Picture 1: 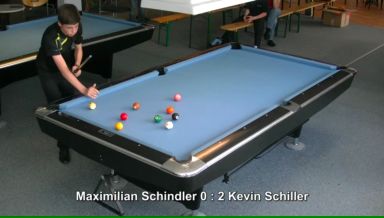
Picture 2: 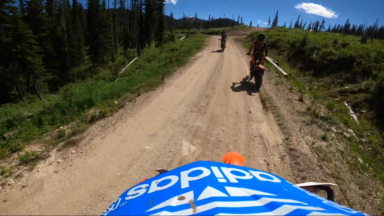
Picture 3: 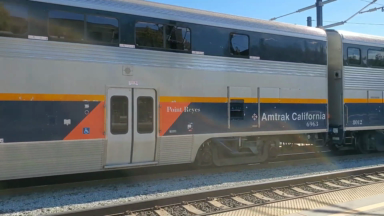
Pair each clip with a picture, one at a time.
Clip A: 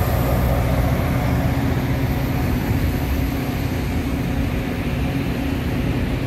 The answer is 3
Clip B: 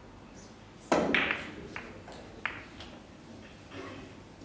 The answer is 1